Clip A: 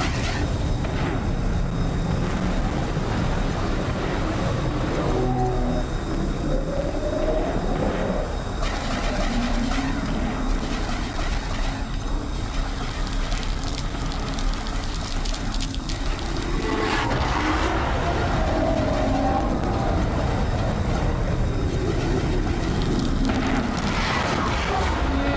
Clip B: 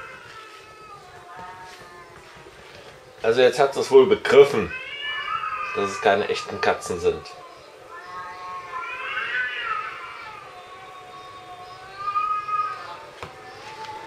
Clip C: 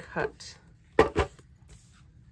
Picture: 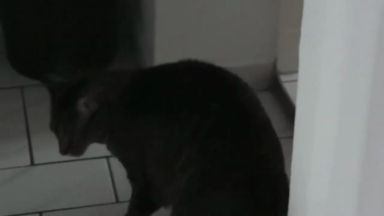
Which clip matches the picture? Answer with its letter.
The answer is B